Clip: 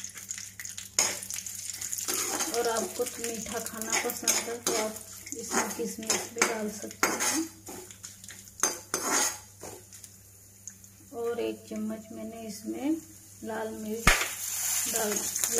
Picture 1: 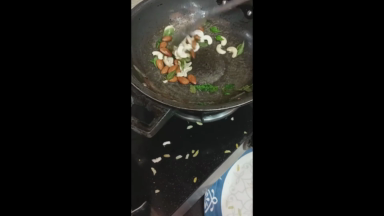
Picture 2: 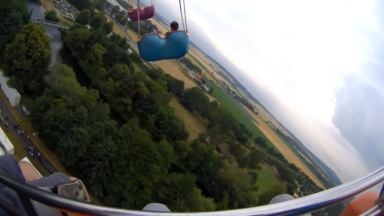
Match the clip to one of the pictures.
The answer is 1